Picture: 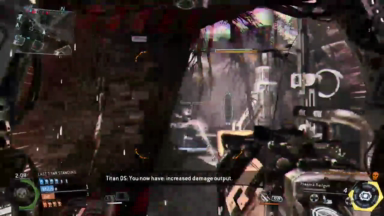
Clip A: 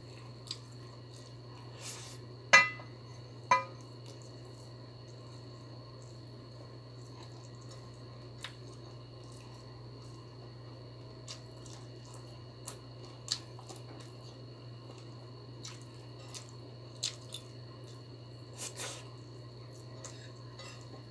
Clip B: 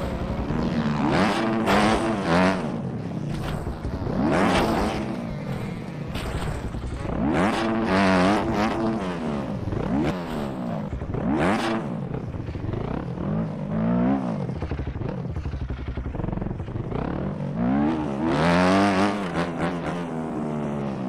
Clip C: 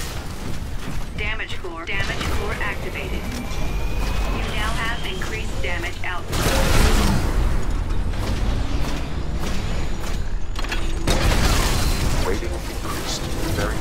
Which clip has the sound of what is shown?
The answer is C